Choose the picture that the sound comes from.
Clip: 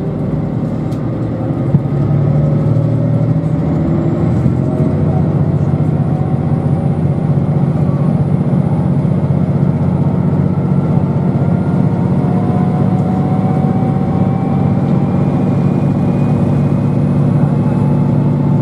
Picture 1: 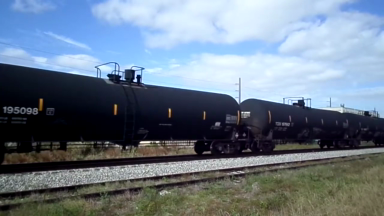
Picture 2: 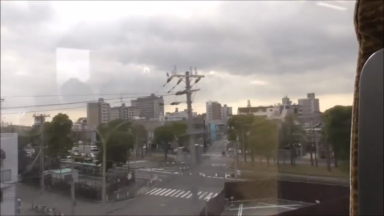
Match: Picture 2